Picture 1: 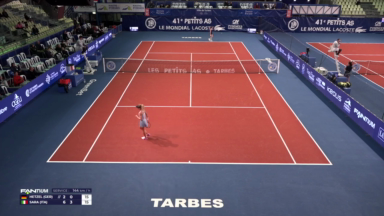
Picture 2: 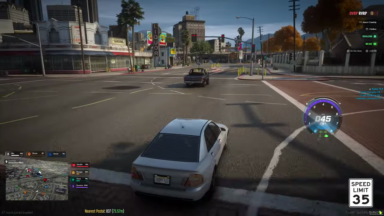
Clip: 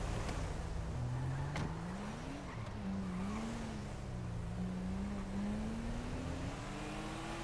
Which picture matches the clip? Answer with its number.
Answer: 2